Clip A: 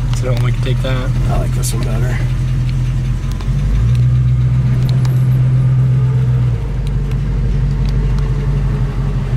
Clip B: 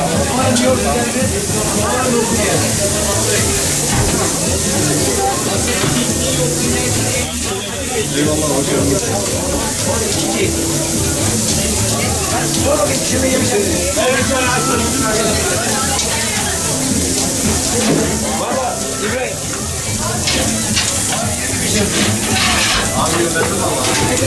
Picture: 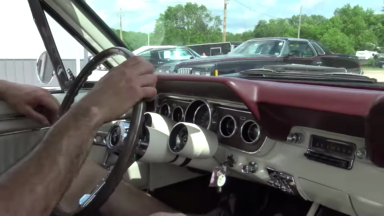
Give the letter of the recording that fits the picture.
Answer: A